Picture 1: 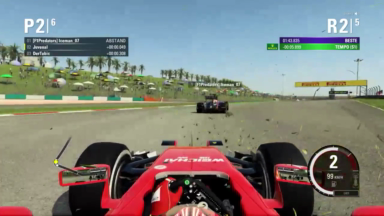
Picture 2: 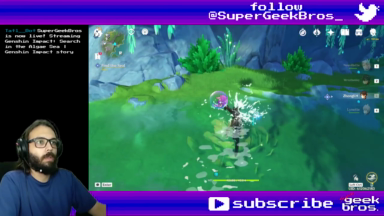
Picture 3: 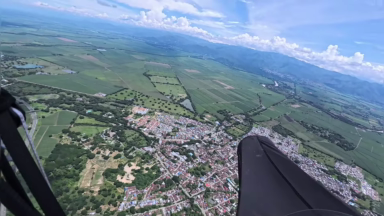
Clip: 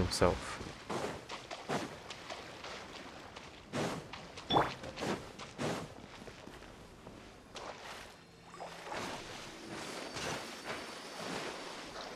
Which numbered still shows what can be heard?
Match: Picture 2